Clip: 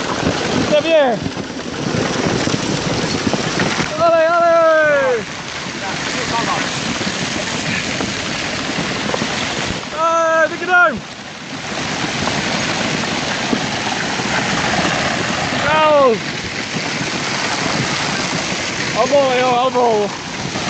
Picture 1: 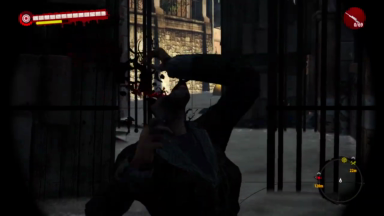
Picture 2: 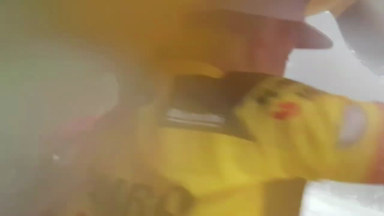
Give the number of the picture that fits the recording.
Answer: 2